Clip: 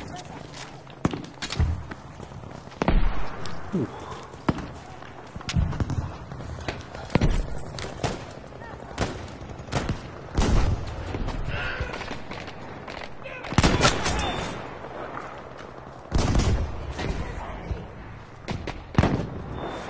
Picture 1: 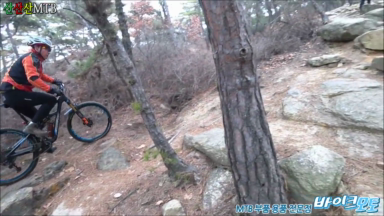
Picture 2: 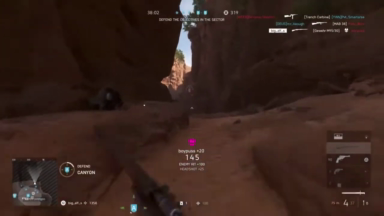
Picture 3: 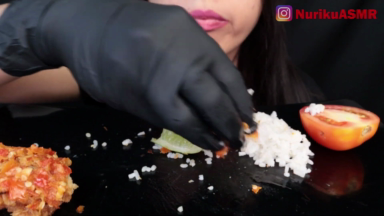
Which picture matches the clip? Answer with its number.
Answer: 2